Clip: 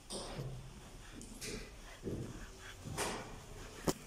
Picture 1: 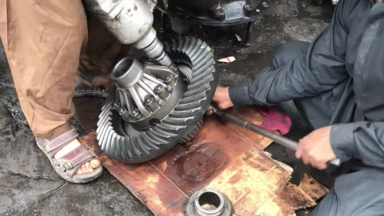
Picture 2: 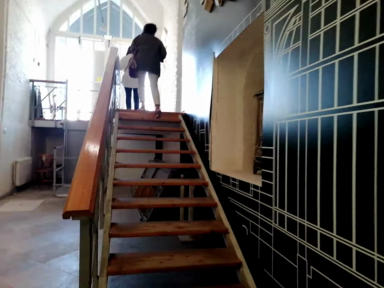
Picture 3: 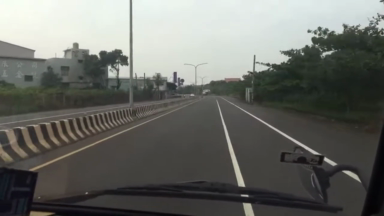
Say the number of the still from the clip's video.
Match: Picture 2